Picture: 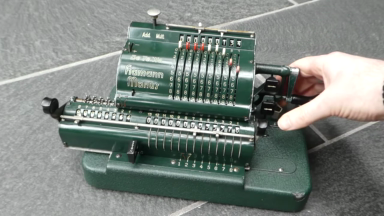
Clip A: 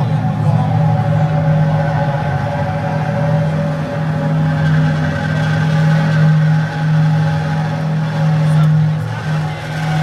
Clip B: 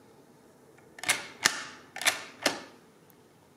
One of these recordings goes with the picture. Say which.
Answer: B